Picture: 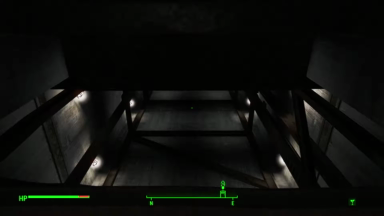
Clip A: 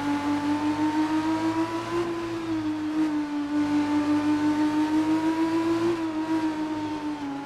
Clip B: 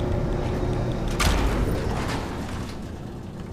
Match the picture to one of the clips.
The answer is B